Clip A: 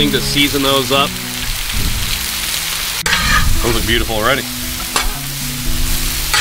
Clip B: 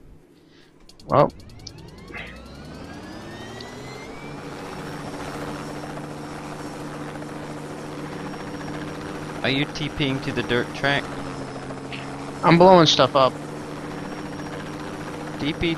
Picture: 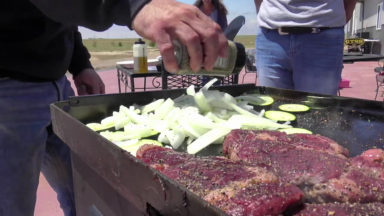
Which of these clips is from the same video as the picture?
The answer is A